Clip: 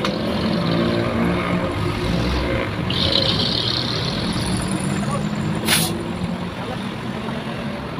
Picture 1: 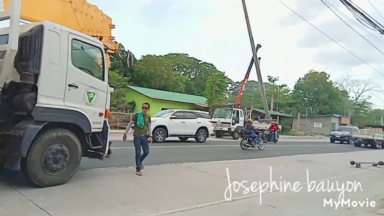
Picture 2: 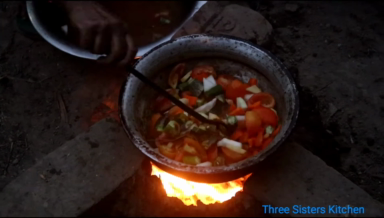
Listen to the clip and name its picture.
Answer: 1